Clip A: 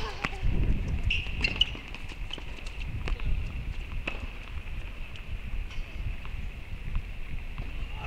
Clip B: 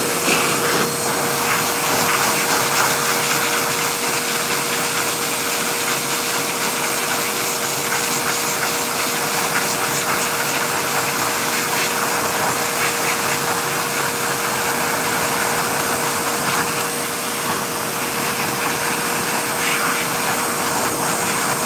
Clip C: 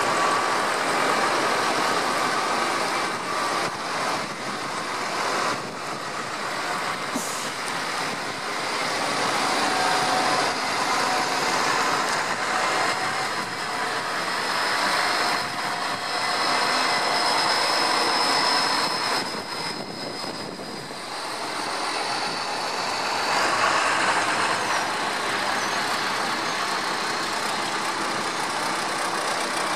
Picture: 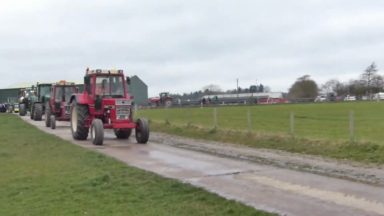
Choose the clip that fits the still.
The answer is C